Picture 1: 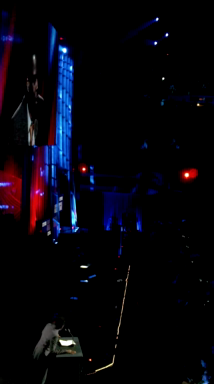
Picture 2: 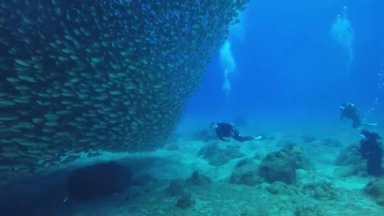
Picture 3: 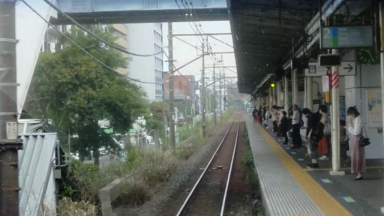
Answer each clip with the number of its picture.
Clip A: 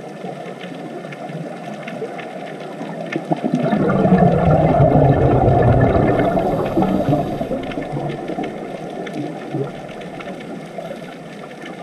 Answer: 2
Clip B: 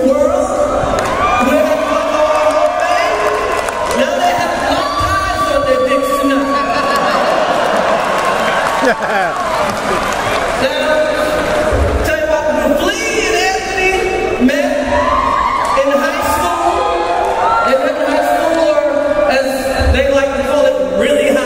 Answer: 1